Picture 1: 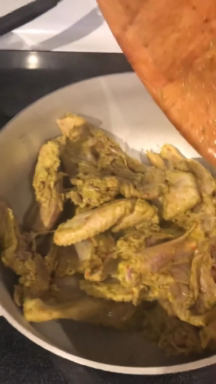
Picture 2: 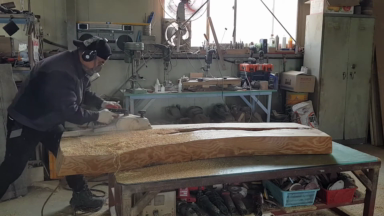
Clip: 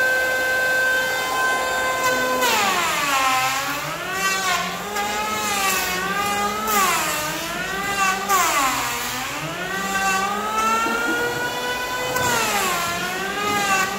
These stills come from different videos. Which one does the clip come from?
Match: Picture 2